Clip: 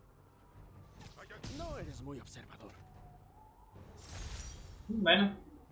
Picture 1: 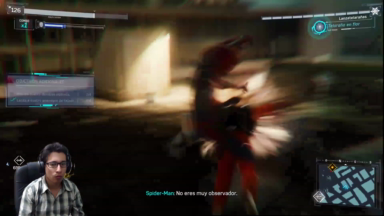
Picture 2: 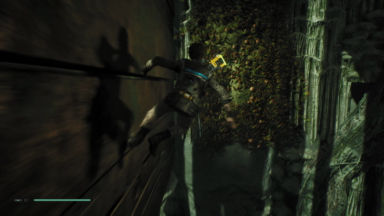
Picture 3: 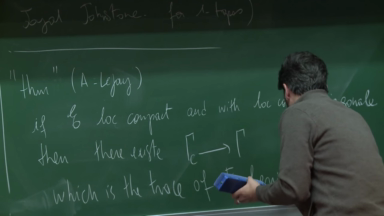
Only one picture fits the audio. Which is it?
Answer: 1